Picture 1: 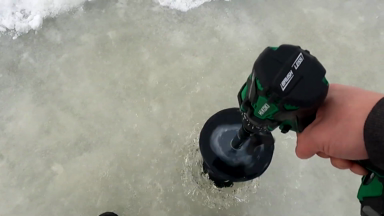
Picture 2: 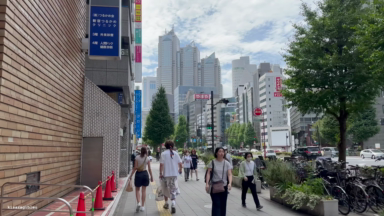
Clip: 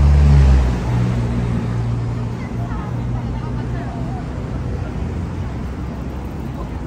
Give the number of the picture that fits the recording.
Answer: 2